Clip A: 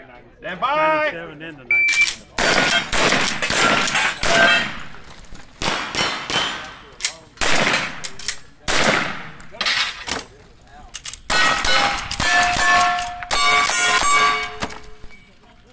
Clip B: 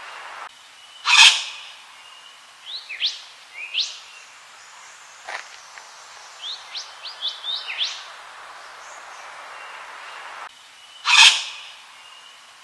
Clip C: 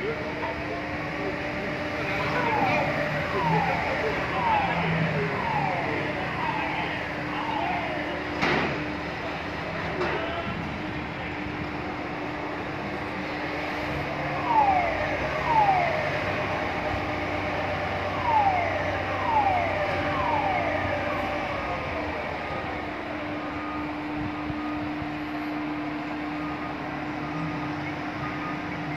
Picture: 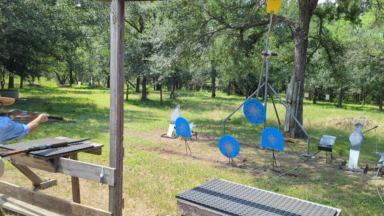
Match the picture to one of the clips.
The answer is A